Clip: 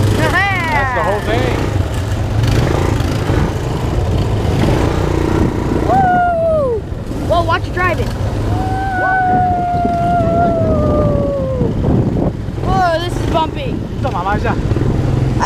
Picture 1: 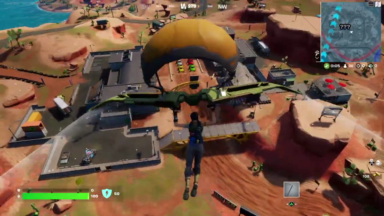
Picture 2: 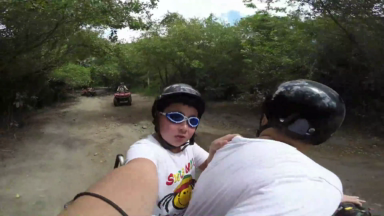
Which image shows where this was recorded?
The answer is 2